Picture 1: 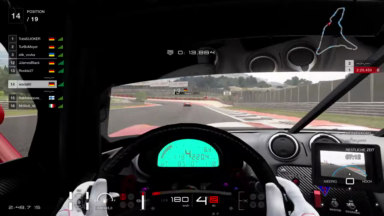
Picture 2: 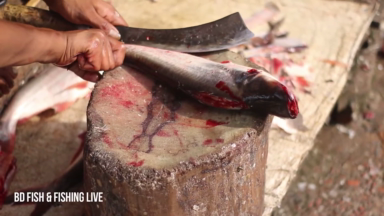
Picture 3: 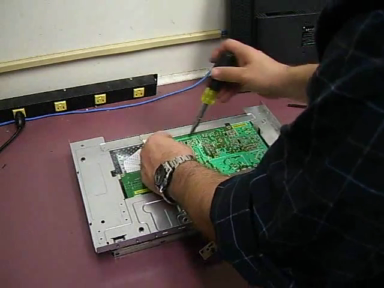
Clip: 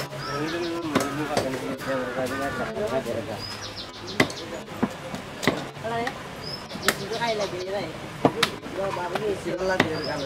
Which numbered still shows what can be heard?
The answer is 2